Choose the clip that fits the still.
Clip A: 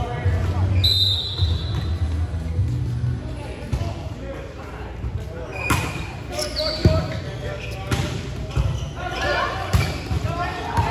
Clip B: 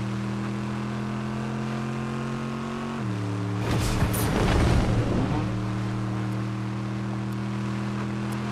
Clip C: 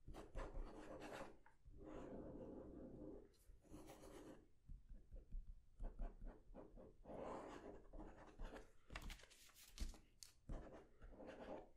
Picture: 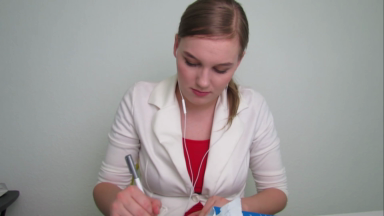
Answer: C